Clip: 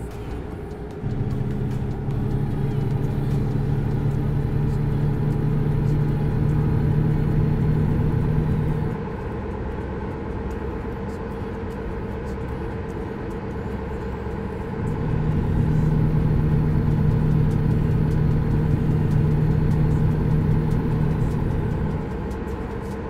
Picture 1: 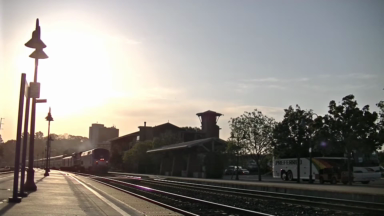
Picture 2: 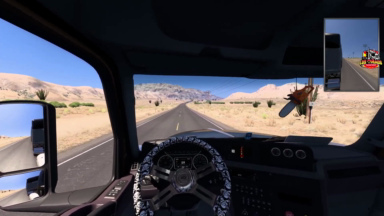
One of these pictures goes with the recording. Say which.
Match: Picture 2